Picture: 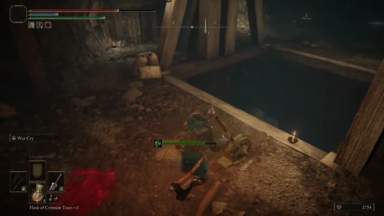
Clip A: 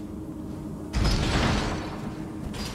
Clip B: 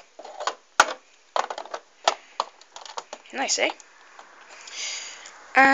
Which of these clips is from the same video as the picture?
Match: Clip A